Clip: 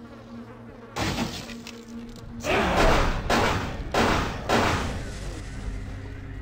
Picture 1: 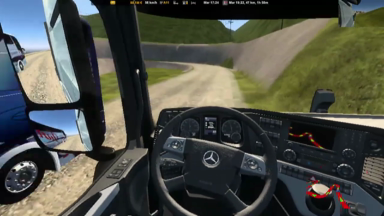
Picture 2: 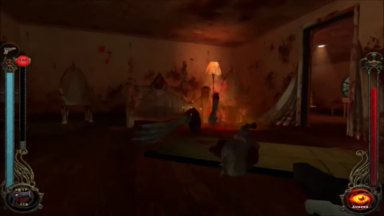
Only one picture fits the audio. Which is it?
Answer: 2